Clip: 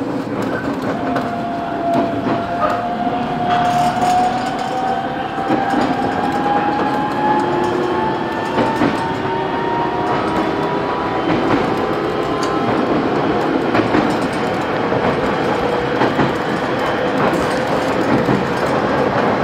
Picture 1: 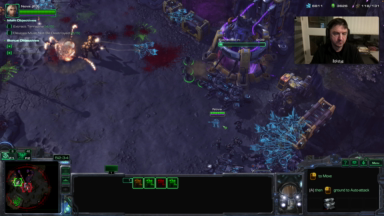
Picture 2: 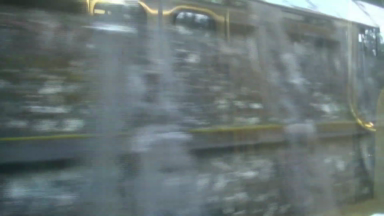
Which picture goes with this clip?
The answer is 2